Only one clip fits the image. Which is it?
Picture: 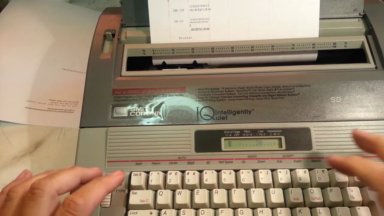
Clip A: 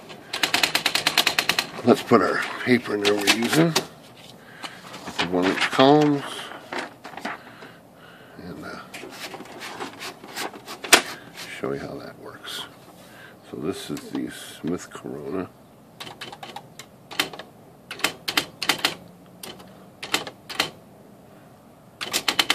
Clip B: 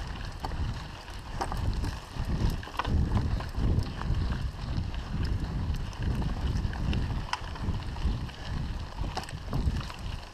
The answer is A